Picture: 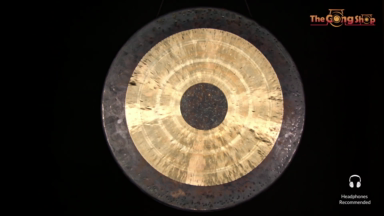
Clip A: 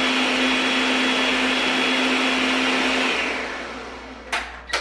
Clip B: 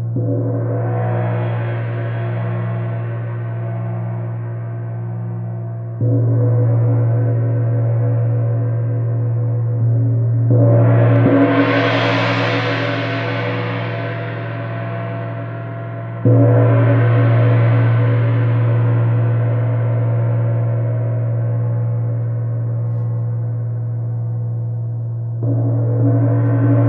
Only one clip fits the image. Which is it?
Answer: B